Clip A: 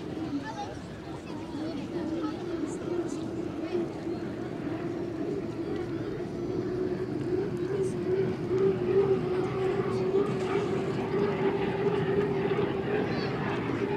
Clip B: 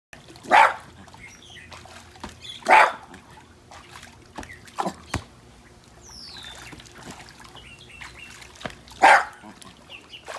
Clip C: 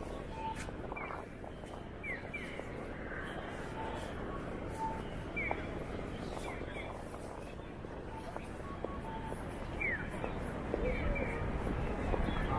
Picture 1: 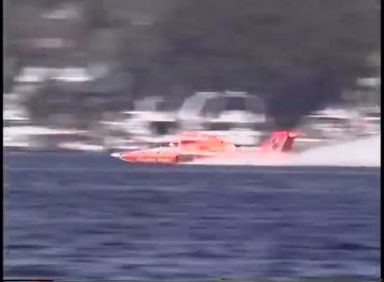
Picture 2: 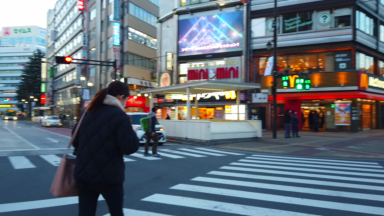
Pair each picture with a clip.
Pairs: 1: A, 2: C